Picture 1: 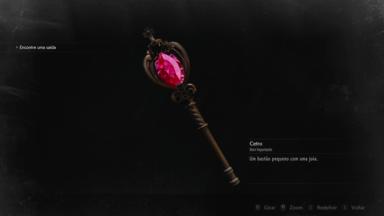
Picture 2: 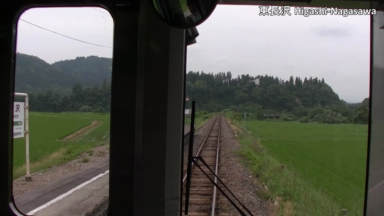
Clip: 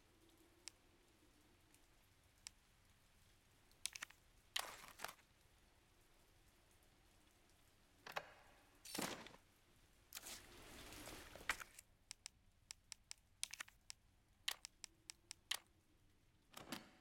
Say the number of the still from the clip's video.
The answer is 1